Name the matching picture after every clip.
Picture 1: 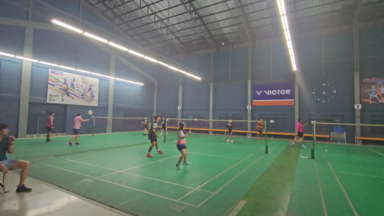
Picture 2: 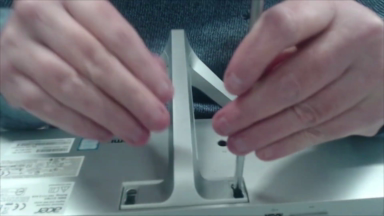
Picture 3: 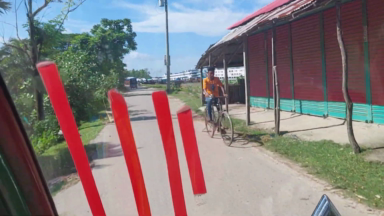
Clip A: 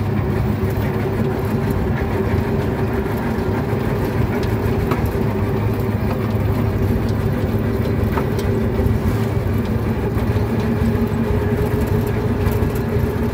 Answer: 3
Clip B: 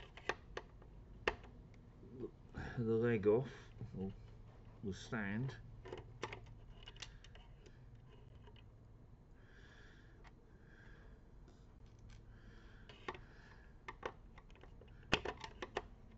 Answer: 2